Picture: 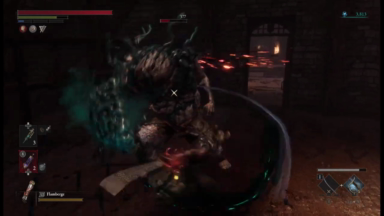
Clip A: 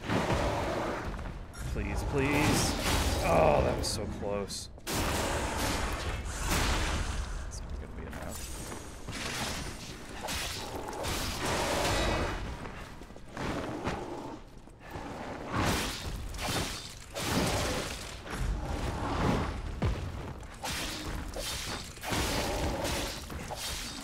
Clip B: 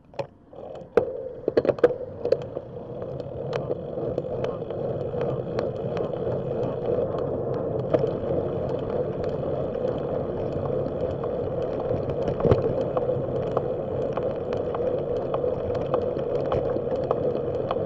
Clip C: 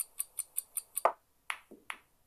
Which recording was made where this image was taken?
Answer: A